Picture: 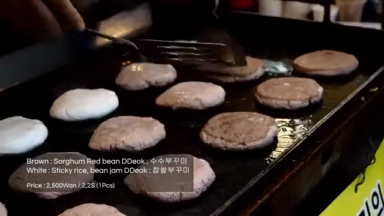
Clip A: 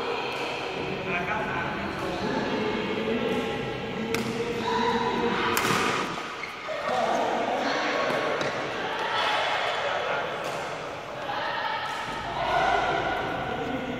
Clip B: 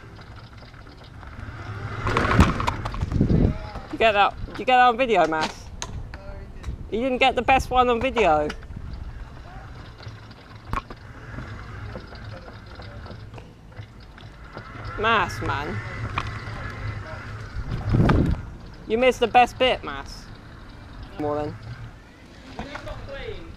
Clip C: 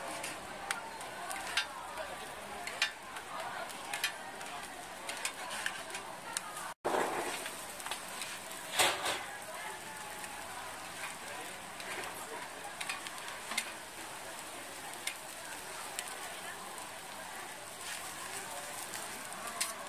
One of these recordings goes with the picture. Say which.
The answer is C